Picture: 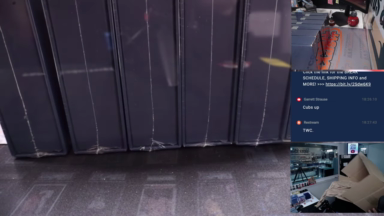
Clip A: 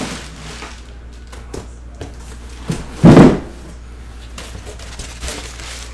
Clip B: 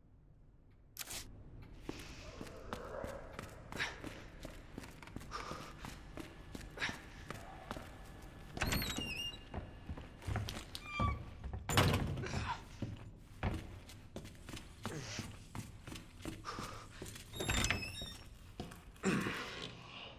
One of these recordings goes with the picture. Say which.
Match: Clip A